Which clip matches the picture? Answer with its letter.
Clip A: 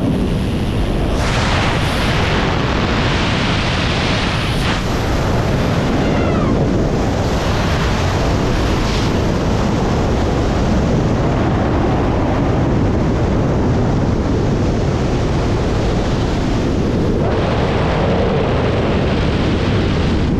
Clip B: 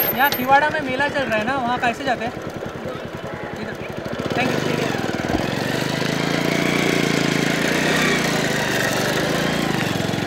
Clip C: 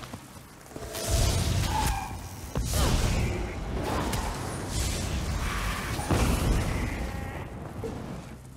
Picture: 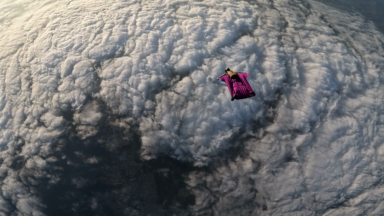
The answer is A